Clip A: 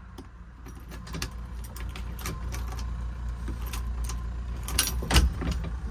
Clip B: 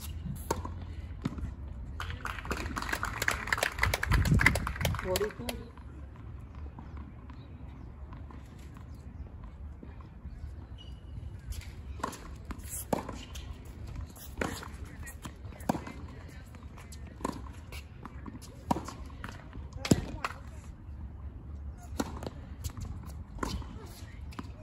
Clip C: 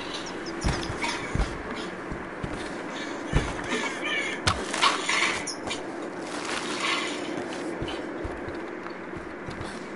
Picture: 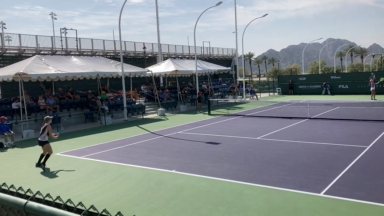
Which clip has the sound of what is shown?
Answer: B